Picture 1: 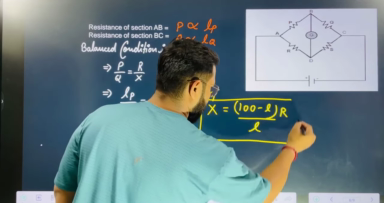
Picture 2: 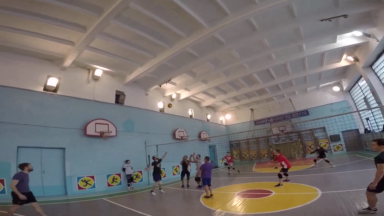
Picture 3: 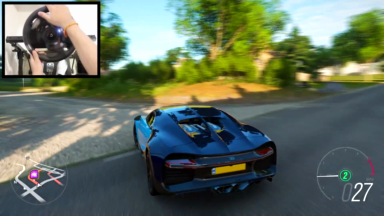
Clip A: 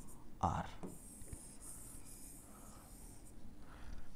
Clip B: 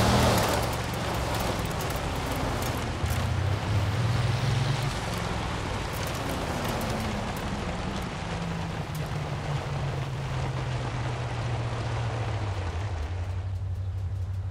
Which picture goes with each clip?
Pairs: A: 1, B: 3